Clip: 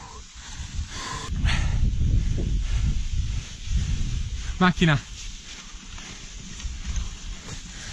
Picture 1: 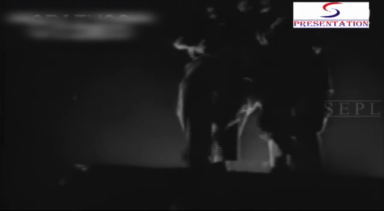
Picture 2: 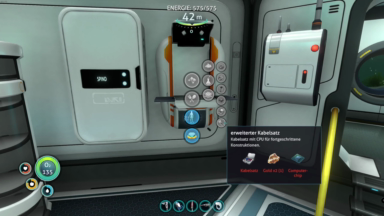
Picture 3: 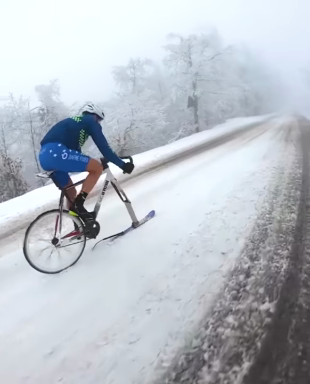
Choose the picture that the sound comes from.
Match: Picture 3